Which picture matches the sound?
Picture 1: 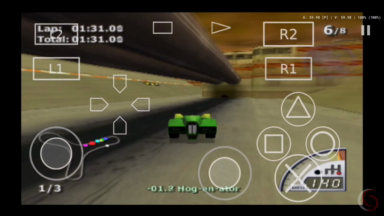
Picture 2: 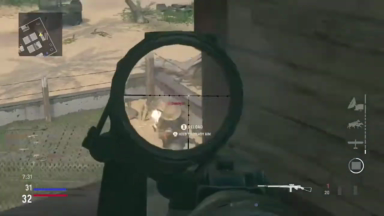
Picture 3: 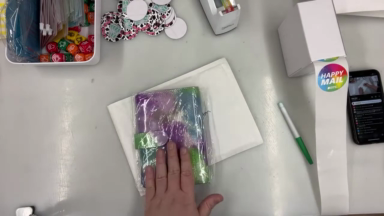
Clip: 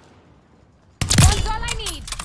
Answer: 2